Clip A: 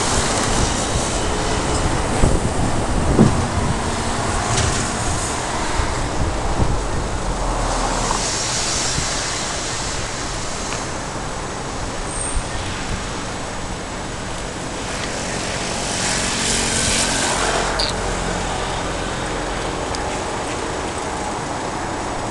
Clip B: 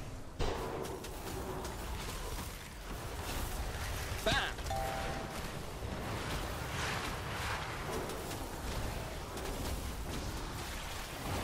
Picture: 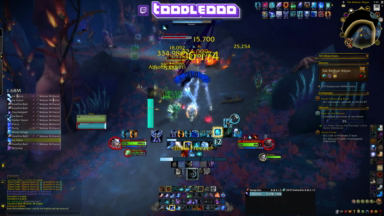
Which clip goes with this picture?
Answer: B